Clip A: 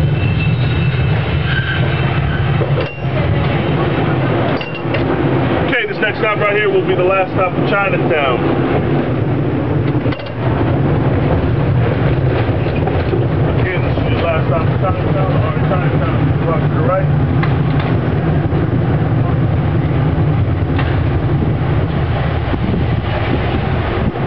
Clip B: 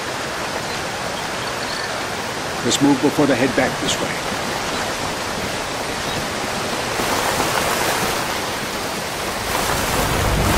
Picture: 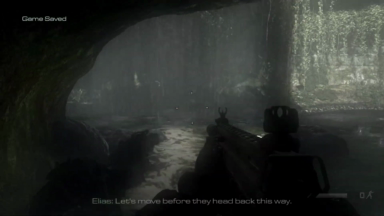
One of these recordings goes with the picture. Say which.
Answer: B